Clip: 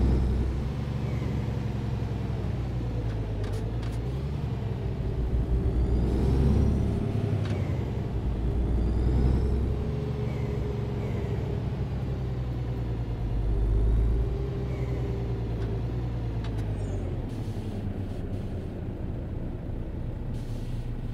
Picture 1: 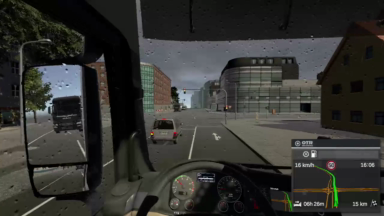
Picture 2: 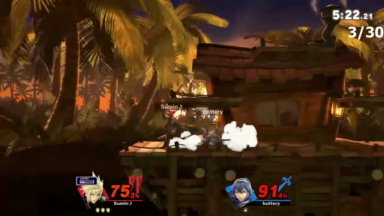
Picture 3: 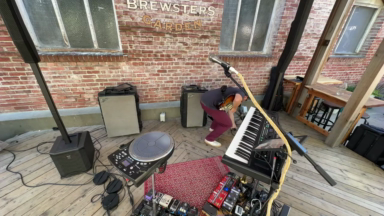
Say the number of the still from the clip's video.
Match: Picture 1